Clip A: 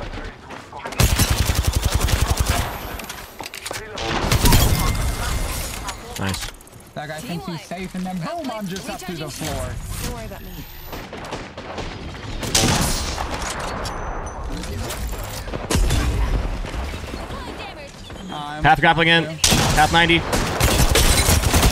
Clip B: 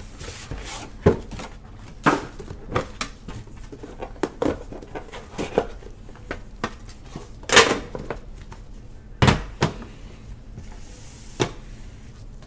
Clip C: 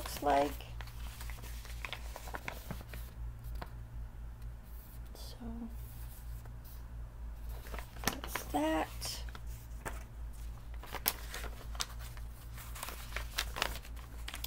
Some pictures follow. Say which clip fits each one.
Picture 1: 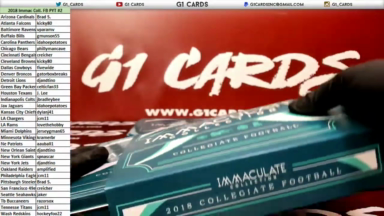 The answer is B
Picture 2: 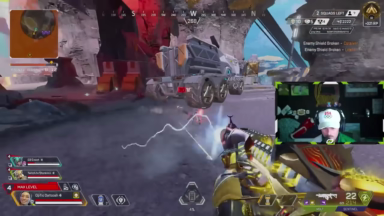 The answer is A